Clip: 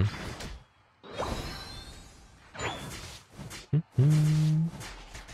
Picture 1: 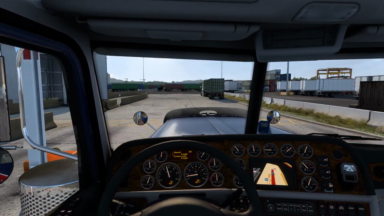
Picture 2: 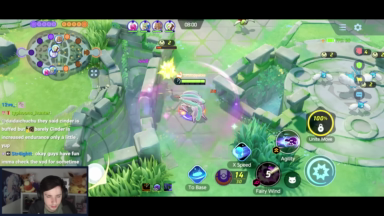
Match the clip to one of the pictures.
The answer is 2